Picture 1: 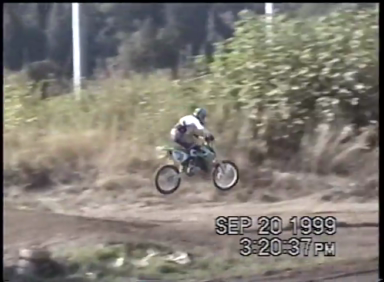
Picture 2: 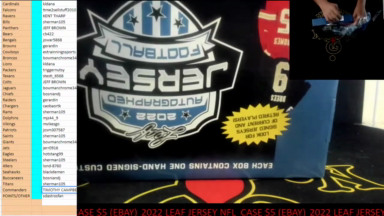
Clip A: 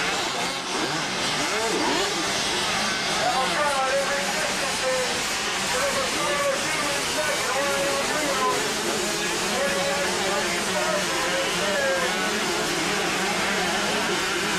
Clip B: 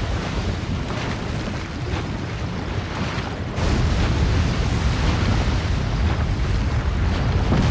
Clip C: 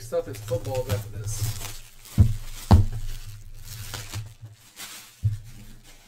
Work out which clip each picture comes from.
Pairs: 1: A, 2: C